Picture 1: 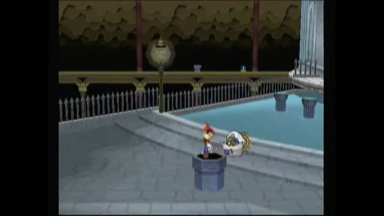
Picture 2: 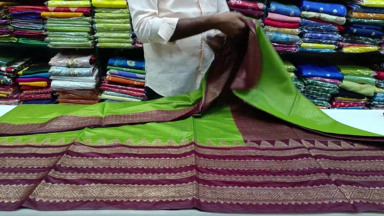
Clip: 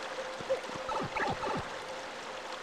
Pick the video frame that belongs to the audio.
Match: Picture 1